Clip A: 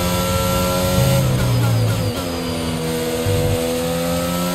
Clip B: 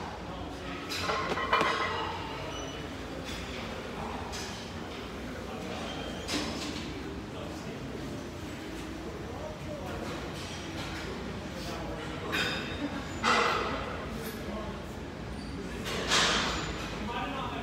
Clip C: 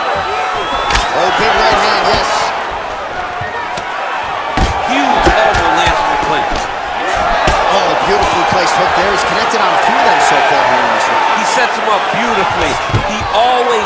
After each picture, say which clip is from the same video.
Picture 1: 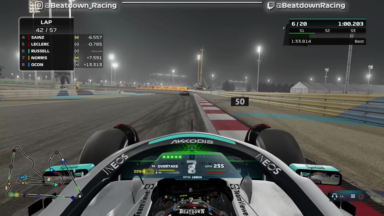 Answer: A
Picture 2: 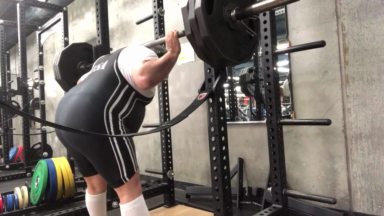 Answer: B